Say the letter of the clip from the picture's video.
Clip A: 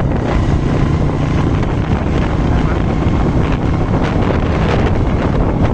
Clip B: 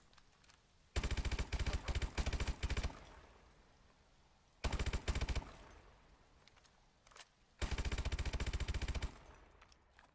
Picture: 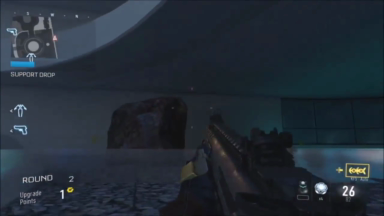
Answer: B